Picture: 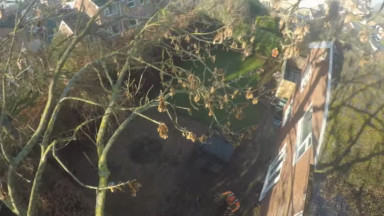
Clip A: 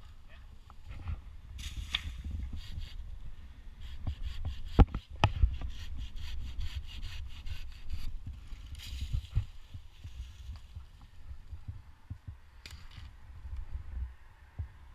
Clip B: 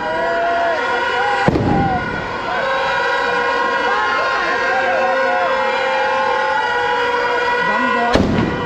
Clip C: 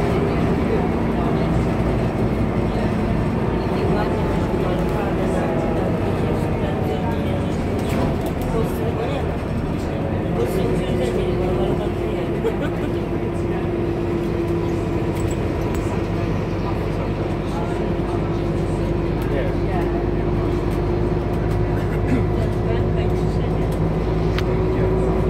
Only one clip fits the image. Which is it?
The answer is A